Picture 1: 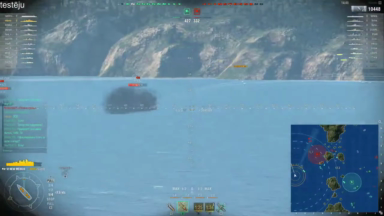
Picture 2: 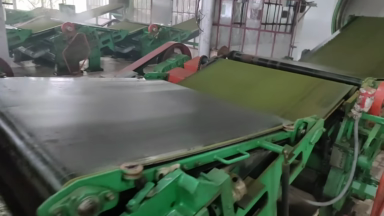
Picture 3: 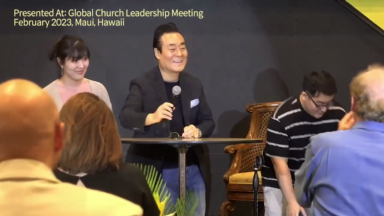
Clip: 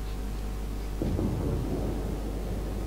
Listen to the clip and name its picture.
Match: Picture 1